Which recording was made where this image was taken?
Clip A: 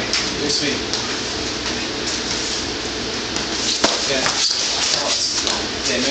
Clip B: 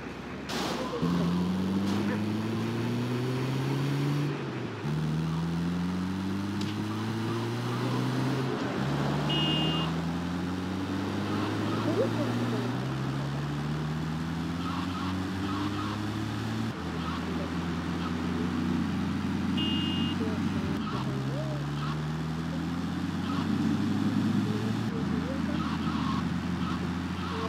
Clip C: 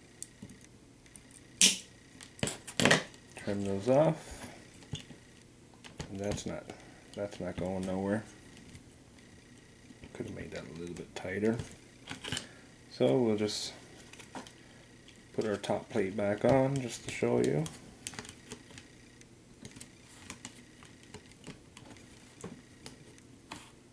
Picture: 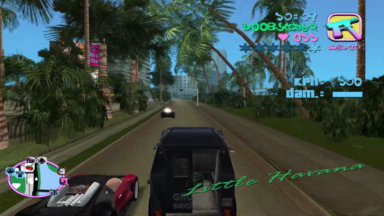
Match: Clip B